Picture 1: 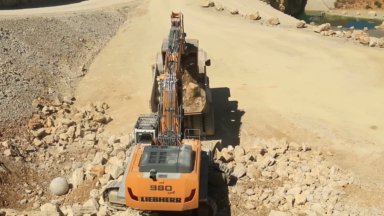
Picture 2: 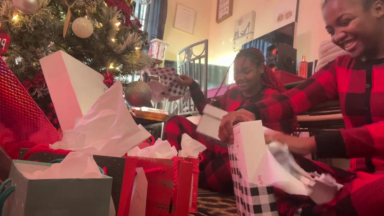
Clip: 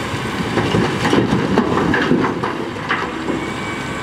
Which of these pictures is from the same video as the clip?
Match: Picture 1